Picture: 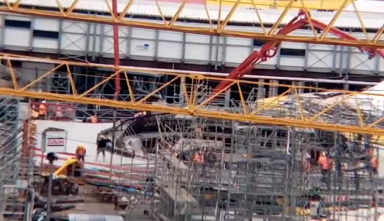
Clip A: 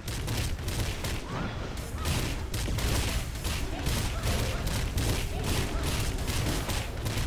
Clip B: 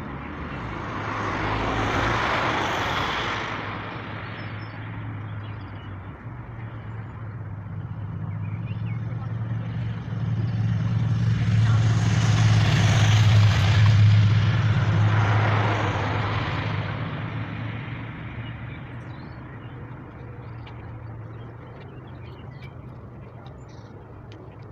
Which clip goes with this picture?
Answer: B